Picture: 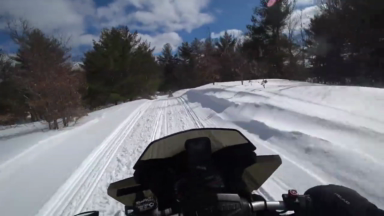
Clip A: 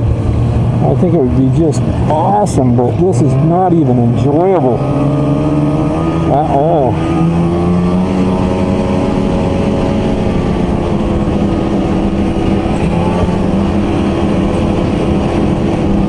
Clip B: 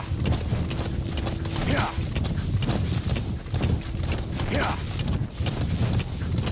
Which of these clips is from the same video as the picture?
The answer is A